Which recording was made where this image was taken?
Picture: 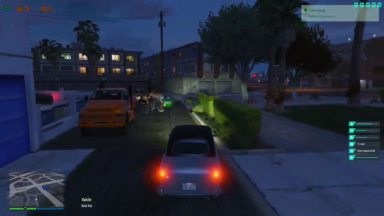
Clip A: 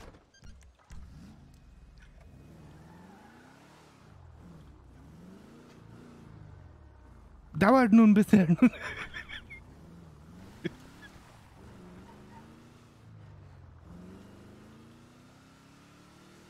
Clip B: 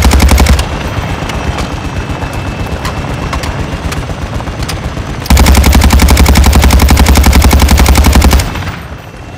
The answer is A